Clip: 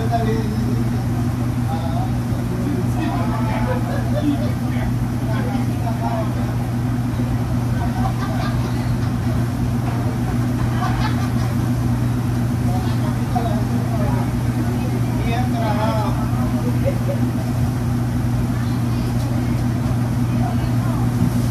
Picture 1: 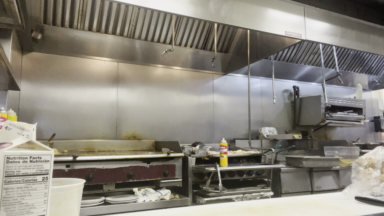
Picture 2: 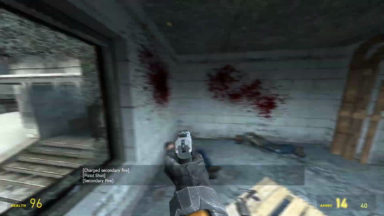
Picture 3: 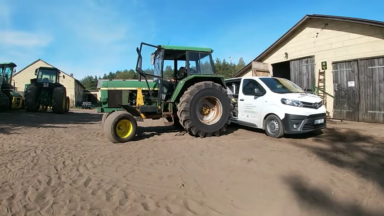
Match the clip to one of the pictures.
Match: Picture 1